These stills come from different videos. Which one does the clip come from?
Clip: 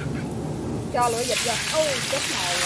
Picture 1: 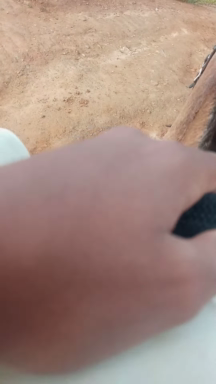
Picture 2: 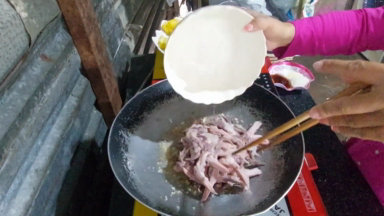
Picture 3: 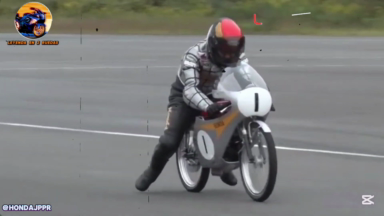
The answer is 2